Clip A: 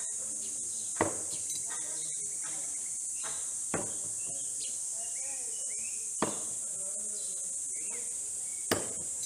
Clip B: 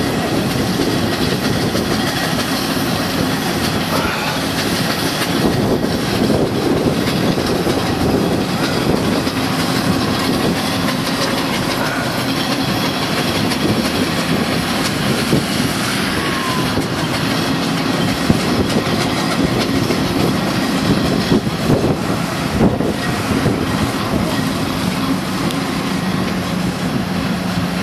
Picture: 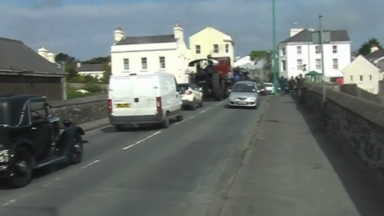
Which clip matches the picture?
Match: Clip B